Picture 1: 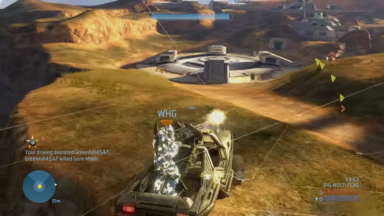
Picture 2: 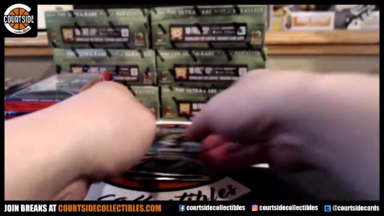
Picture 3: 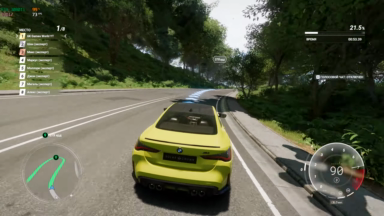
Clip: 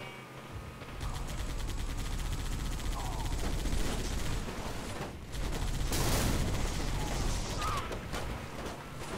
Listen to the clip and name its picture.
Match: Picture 1